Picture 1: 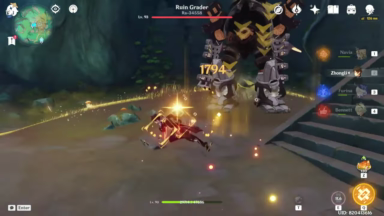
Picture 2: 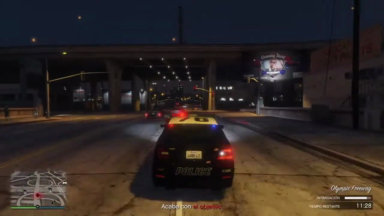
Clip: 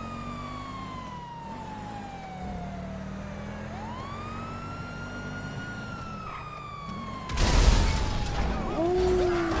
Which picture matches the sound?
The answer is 2